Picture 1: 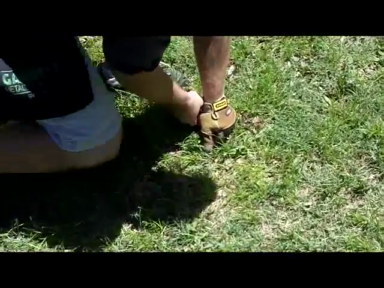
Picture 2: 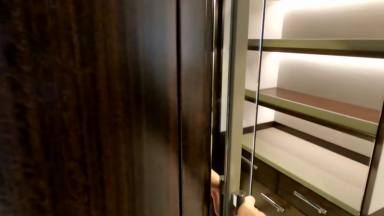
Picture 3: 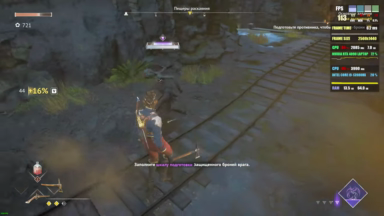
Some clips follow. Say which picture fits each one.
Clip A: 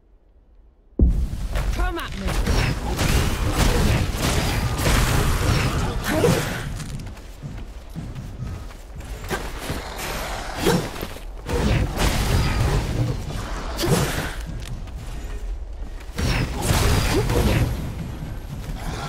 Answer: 3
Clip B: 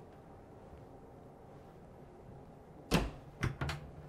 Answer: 2